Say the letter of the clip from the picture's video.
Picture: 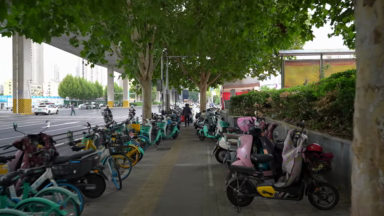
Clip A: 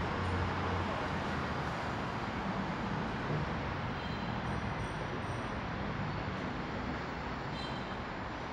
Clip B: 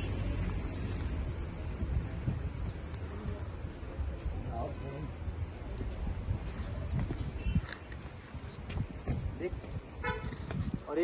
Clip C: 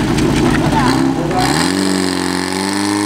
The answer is A